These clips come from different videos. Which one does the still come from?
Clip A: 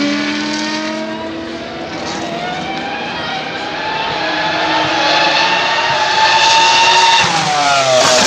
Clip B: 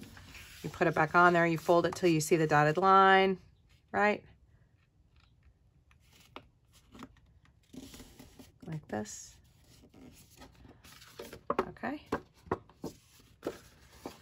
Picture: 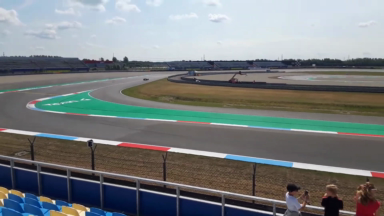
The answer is A